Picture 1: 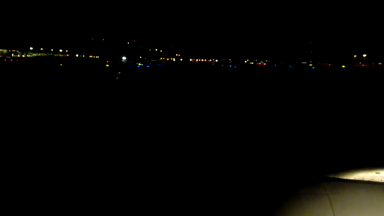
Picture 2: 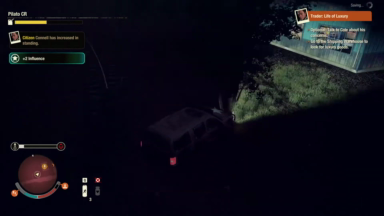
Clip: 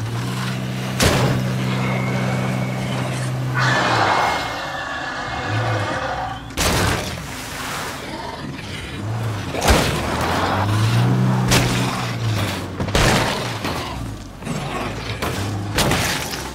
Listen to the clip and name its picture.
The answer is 2